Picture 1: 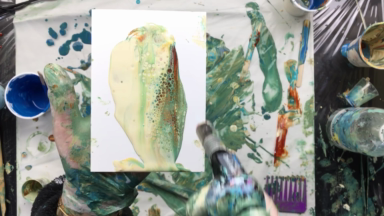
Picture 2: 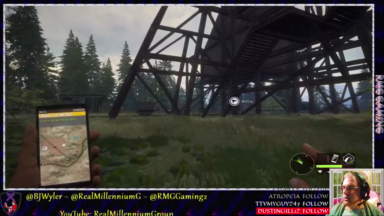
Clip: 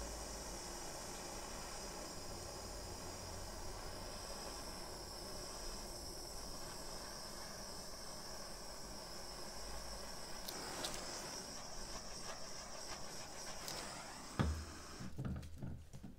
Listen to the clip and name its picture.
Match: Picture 1